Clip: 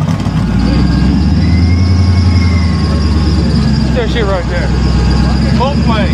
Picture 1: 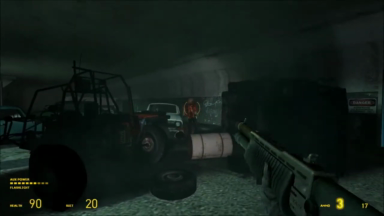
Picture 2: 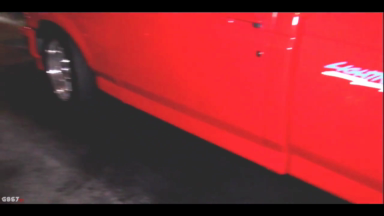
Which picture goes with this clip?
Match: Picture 2